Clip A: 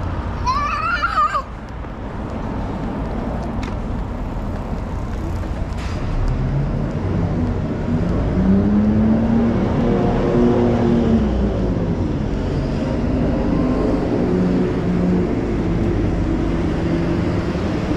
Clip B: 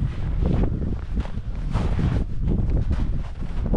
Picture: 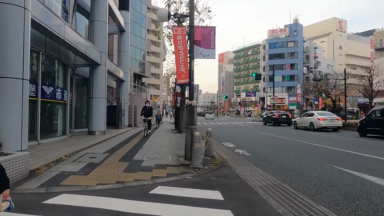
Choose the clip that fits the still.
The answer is A